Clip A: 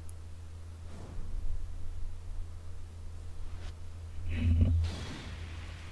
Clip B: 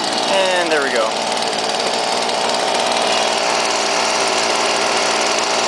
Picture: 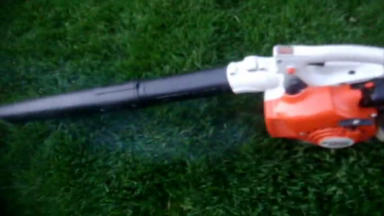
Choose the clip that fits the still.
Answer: B